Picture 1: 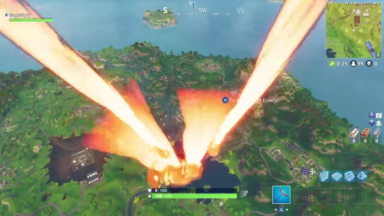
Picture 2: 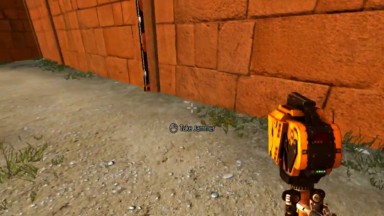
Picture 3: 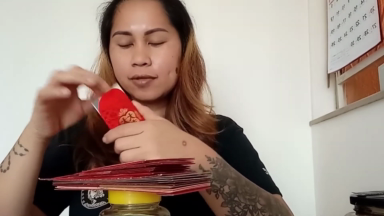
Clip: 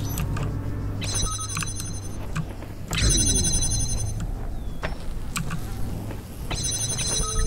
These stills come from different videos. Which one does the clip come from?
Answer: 2